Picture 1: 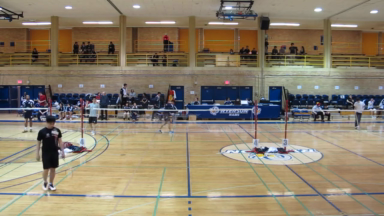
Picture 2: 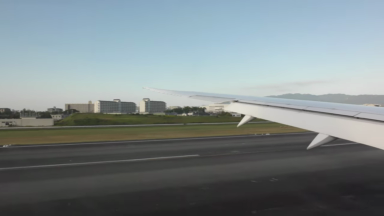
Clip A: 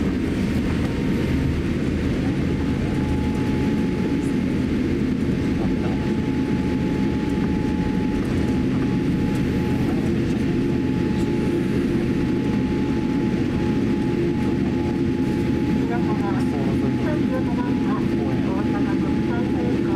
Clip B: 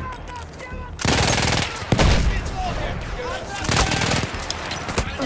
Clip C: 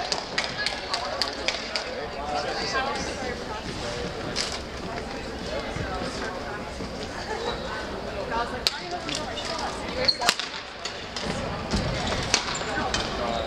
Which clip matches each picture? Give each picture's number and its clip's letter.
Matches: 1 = C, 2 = A